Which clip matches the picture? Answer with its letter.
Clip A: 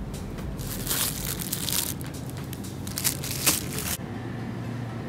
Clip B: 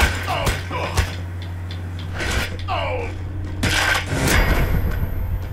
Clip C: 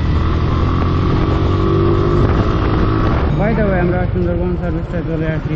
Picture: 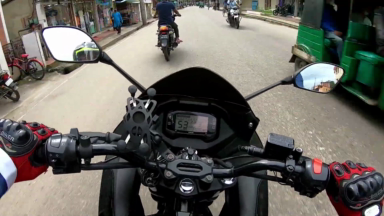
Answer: C